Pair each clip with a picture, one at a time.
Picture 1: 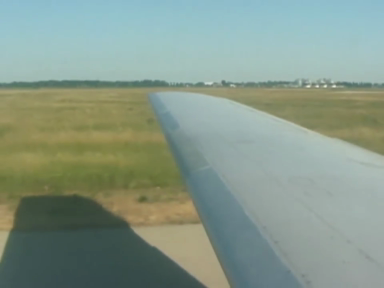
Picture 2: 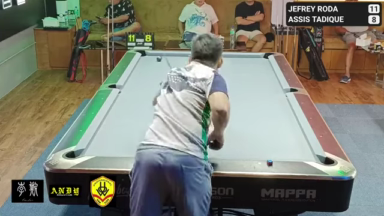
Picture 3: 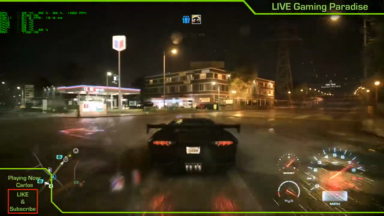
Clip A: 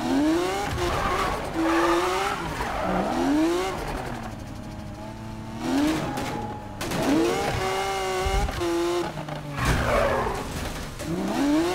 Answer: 3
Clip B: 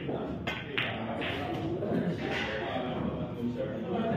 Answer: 2